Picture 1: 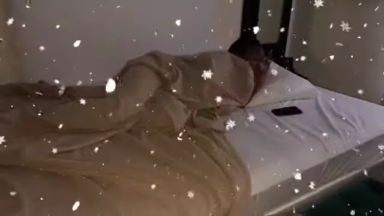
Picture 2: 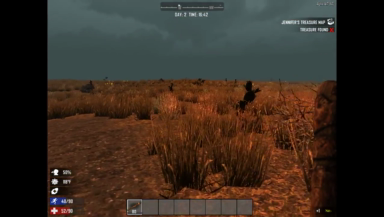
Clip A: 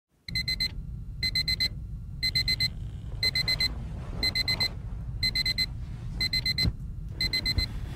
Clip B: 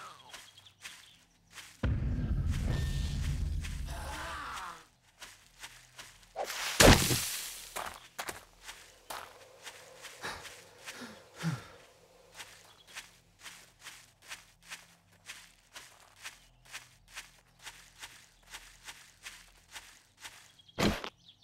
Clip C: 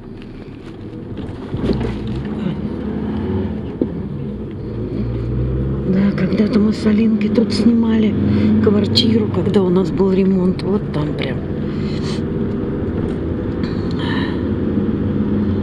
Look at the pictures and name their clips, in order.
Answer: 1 A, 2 B